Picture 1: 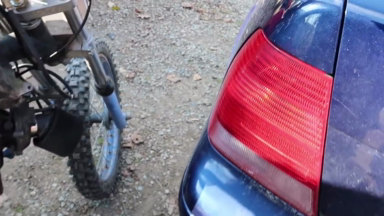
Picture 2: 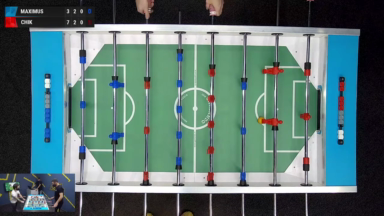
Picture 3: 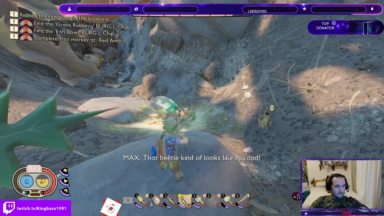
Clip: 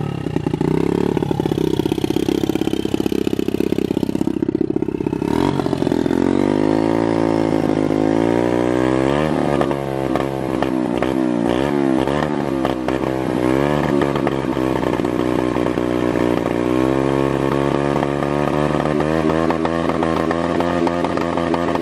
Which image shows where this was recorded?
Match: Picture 1